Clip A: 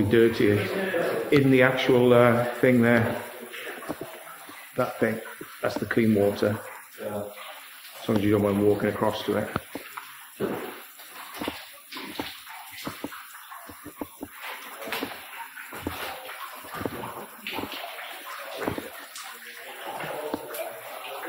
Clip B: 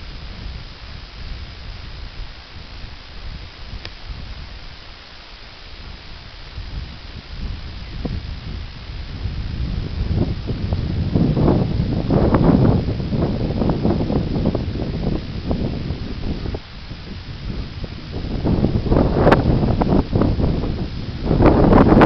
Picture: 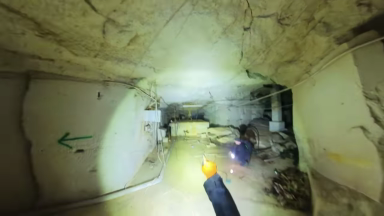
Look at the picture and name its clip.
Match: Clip A